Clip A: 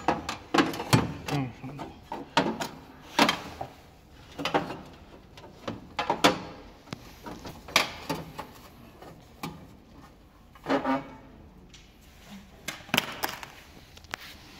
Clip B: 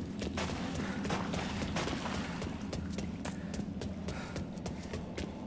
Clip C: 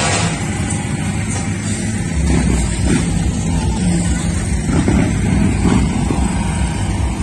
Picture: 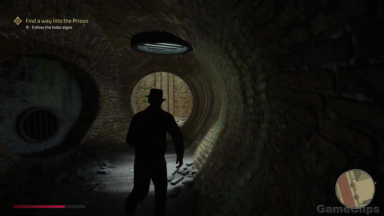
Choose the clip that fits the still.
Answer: B